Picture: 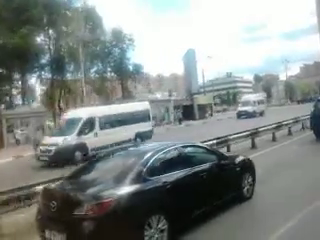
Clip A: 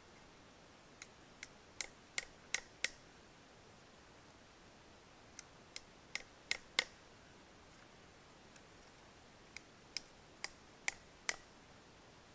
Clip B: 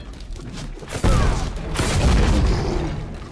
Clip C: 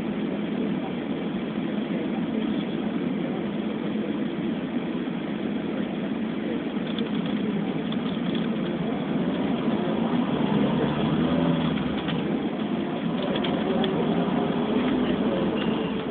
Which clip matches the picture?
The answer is C